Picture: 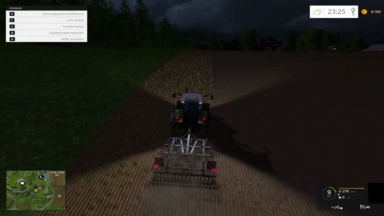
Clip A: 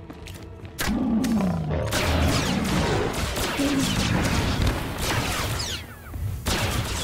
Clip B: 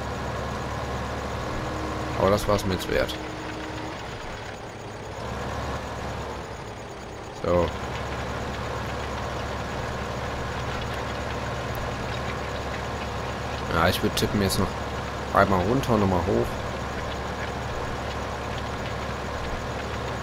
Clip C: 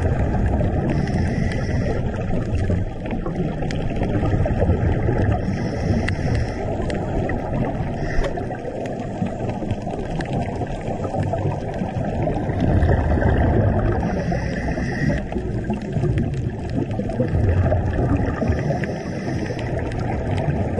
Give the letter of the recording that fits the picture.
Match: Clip B